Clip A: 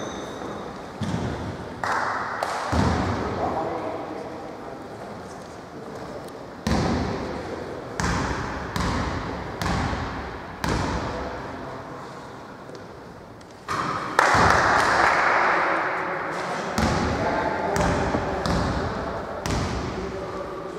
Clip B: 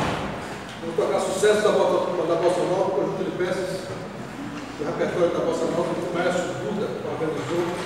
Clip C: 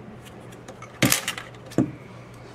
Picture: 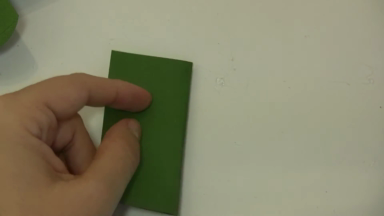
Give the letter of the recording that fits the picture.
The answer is C